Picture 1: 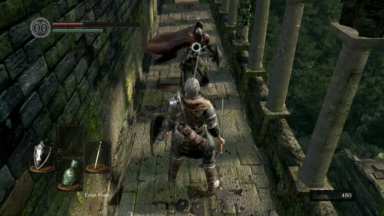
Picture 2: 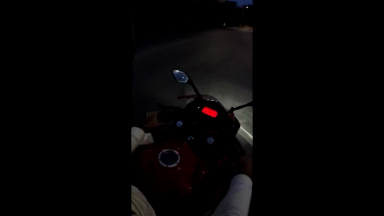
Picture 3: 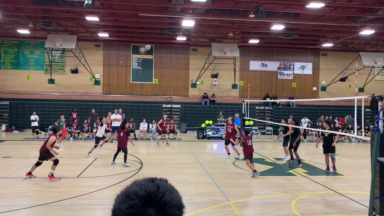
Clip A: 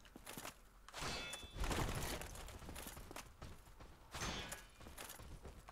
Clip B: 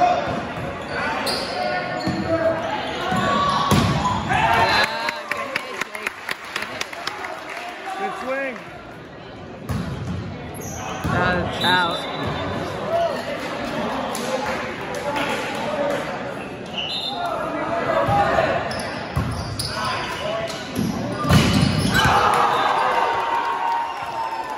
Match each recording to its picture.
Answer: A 1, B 3